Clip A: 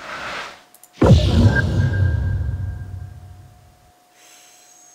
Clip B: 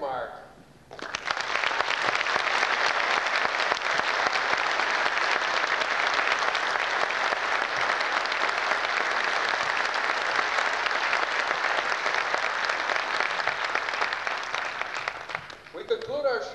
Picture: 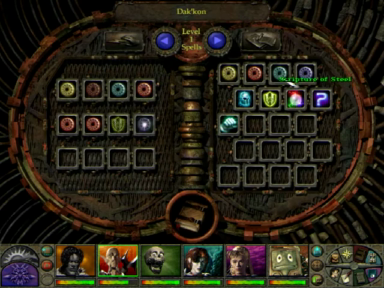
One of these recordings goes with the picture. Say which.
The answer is A